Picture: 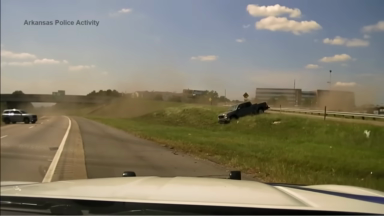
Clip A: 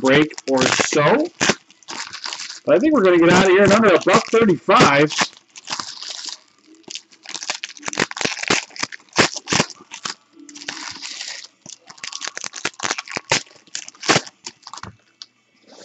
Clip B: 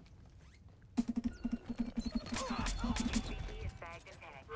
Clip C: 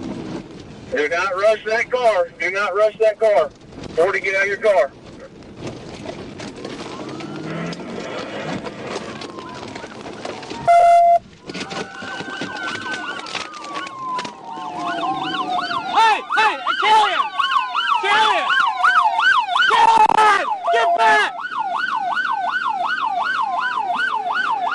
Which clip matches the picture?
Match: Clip C